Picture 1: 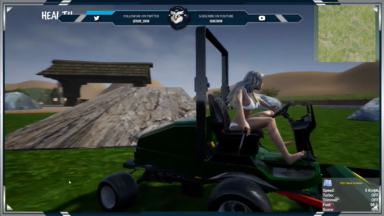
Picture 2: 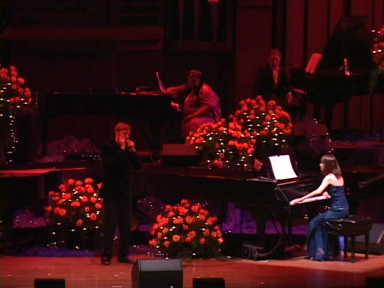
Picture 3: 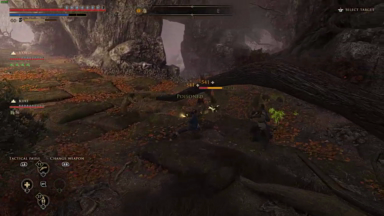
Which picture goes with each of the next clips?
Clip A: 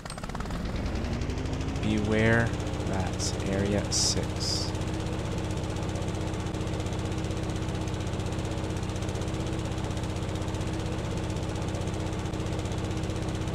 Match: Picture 1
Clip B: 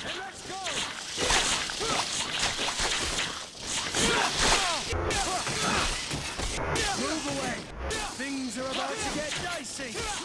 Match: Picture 3